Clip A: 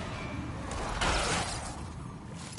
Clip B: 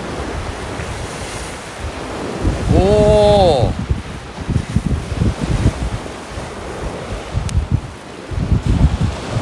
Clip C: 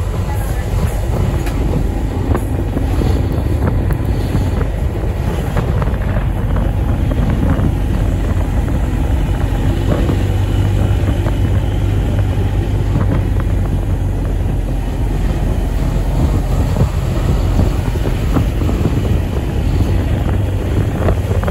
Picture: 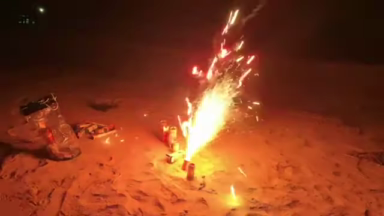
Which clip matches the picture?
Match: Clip B